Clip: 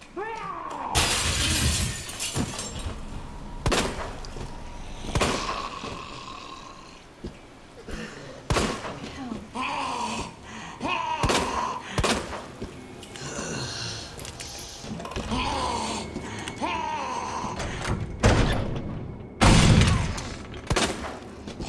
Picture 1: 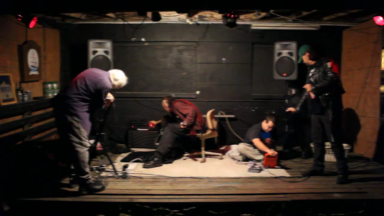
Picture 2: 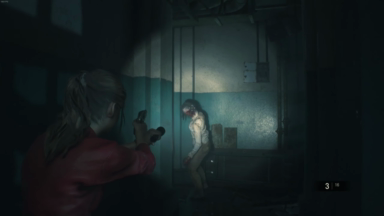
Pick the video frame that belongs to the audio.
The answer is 2